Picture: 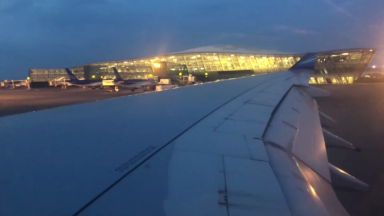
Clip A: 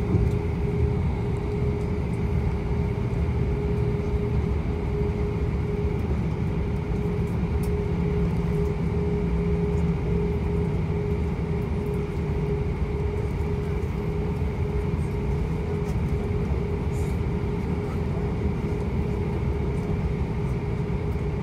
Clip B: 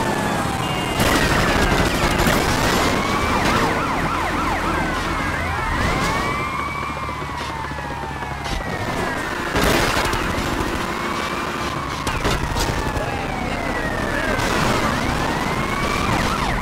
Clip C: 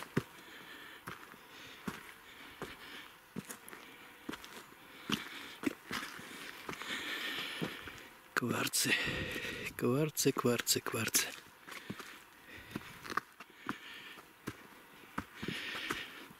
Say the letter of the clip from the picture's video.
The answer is A